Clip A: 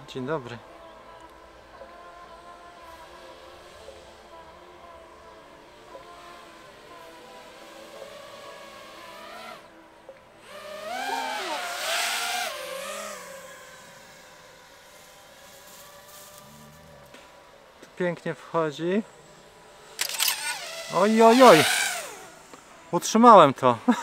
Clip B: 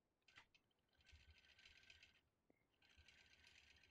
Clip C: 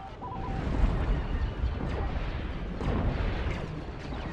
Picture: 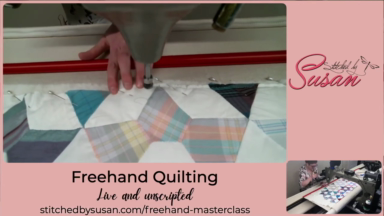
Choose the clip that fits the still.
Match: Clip B